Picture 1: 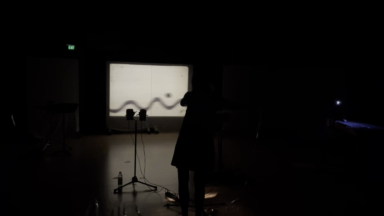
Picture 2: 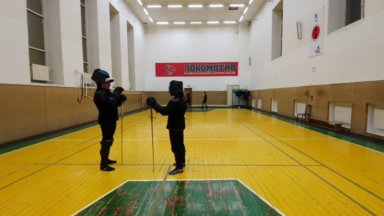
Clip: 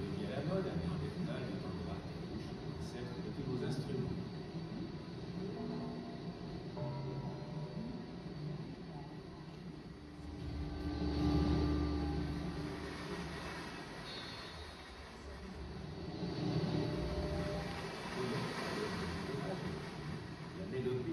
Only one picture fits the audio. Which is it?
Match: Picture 1